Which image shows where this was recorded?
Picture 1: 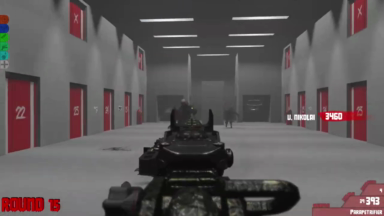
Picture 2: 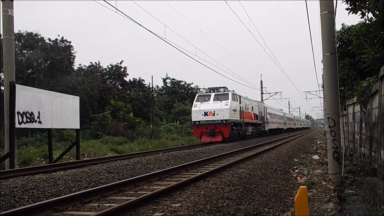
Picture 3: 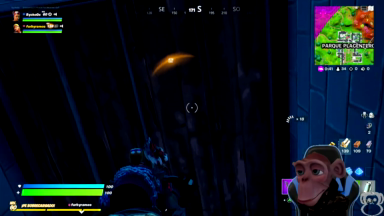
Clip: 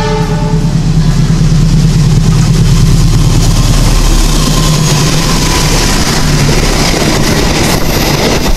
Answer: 2